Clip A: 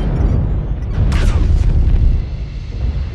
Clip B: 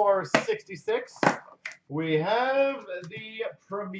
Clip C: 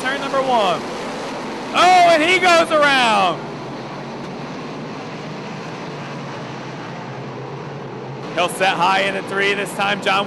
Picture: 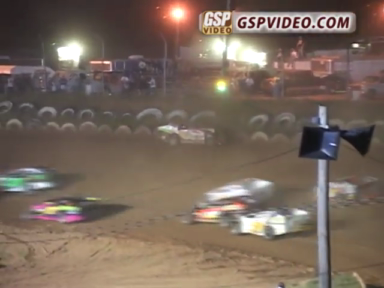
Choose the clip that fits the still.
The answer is C